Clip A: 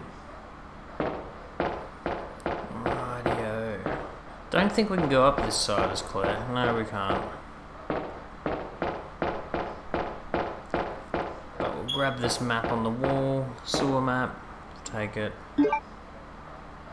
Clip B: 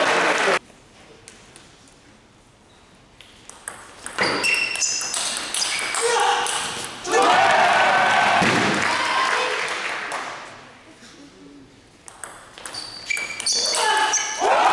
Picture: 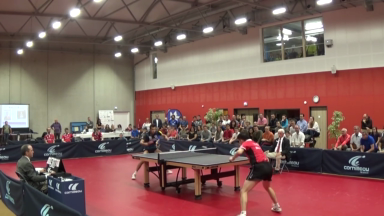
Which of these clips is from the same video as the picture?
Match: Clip B